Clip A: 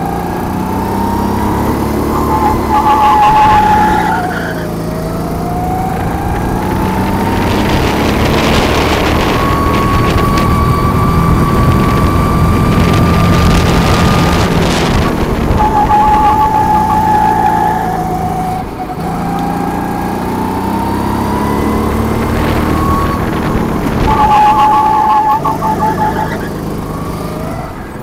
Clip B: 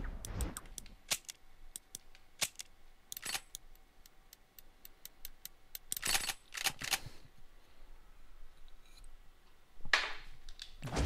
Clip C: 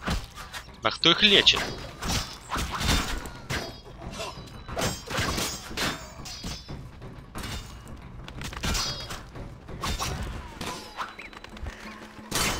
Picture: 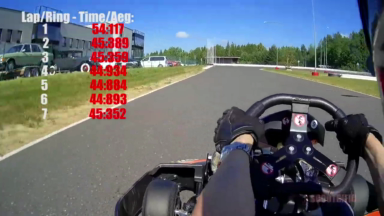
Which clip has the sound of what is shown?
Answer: A